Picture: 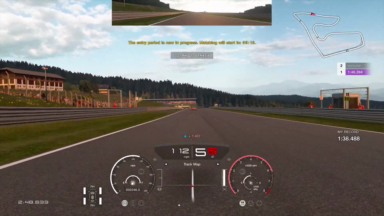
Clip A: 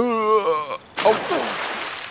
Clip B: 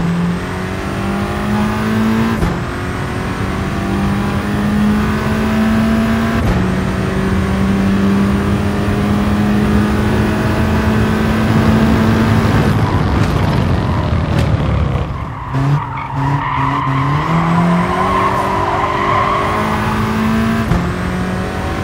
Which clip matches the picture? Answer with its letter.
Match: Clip B